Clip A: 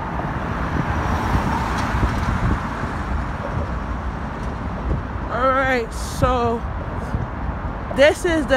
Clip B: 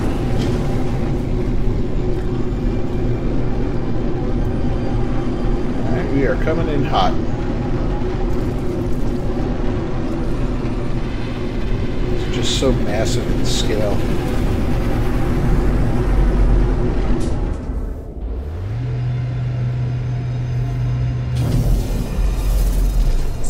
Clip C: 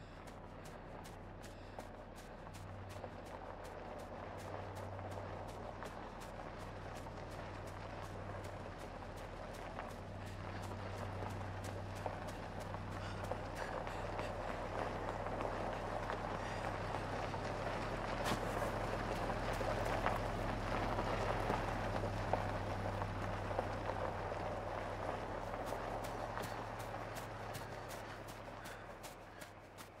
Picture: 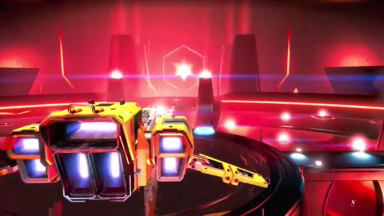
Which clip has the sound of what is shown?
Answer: B